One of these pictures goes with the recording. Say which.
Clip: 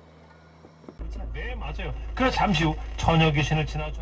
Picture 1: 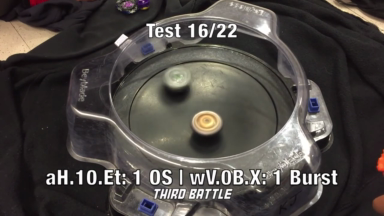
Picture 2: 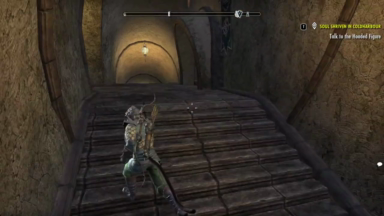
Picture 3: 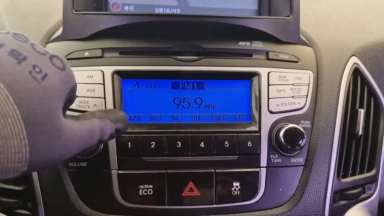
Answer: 3